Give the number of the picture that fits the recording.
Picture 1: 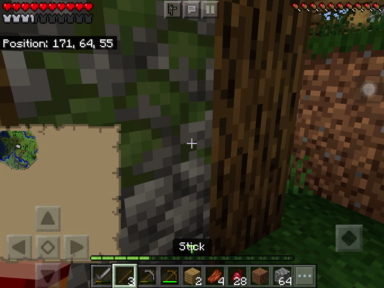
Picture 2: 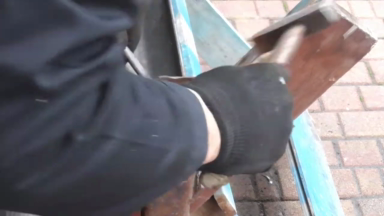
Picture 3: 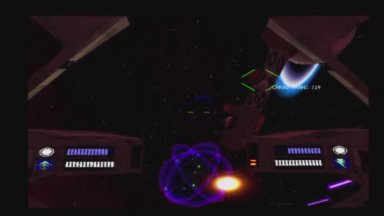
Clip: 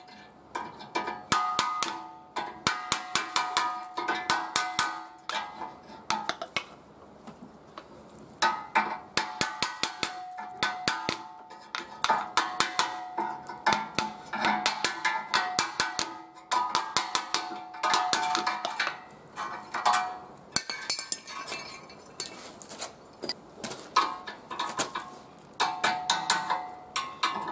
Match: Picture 2